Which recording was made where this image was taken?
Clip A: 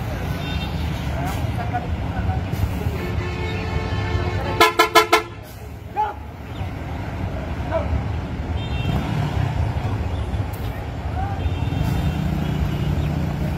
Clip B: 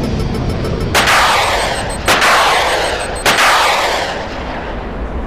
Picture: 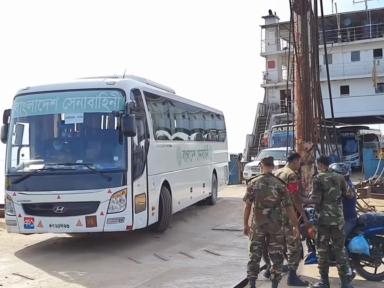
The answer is A